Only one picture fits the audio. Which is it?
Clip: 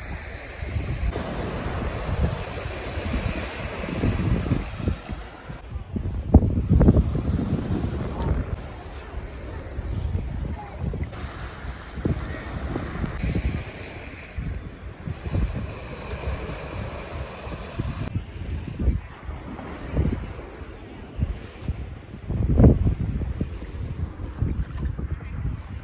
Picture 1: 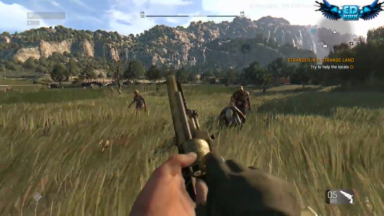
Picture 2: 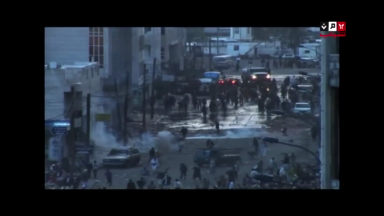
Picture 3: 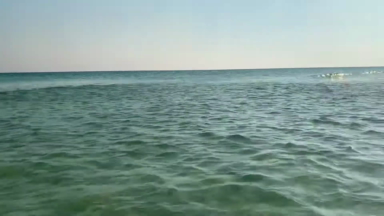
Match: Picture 3